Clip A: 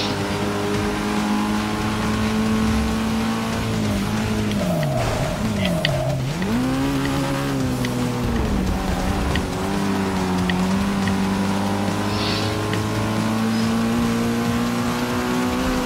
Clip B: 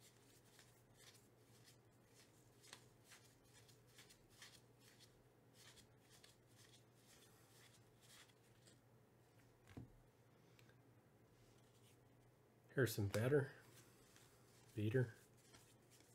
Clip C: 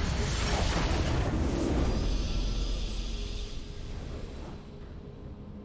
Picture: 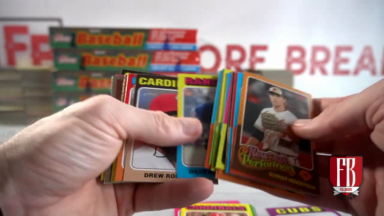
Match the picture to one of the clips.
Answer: B